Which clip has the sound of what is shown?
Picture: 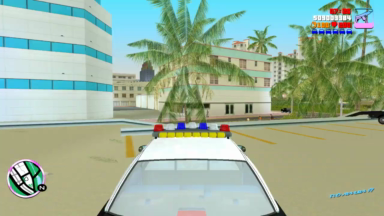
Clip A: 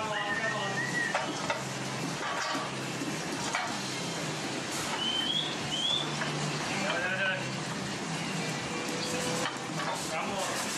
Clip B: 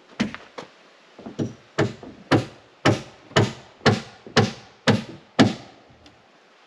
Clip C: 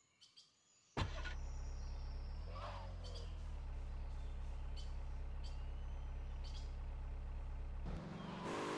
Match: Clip C